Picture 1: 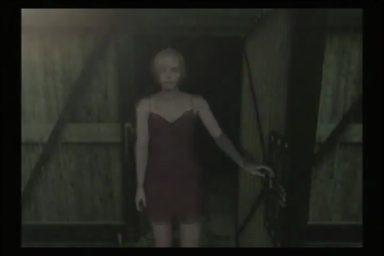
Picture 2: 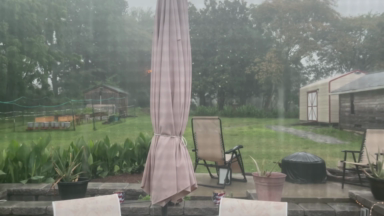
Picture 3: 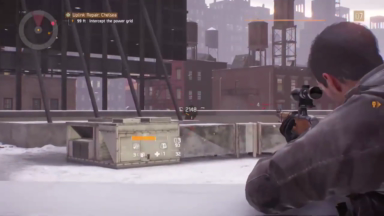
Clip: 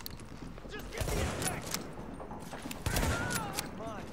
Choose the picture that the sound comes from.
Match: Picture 3